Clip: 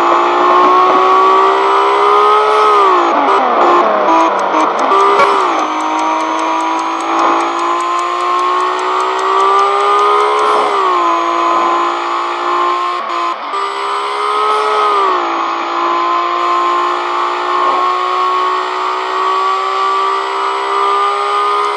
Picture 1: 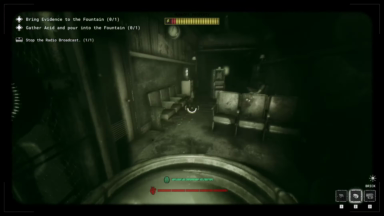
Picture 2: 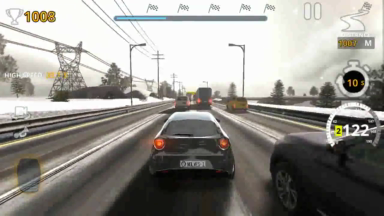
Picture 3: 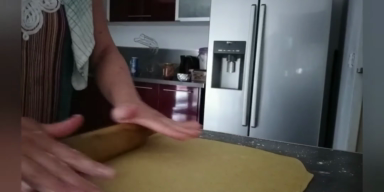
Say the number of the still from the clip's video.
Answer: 2